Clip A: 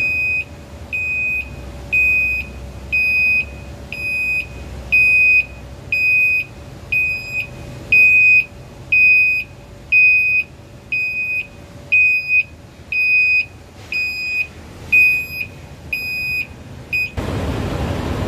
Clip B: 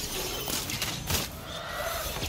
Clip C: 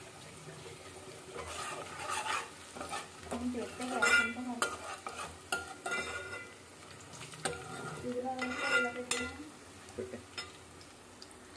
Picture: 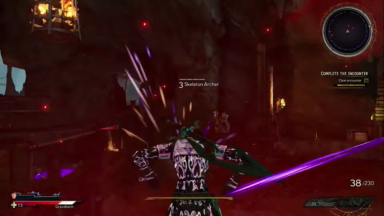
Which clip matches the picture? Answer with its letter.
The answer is B